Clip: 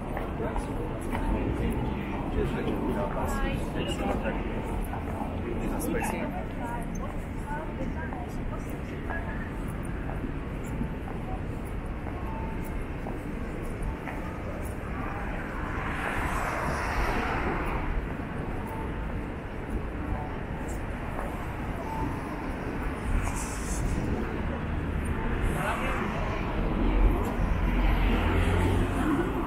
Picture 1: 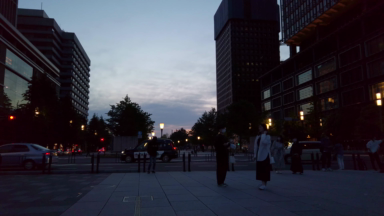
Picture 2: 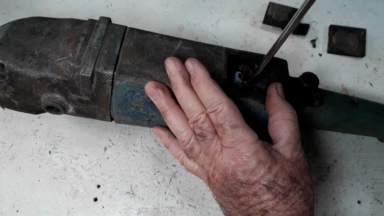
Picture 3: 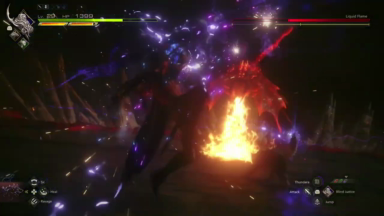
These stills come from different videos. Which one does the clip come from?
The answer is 1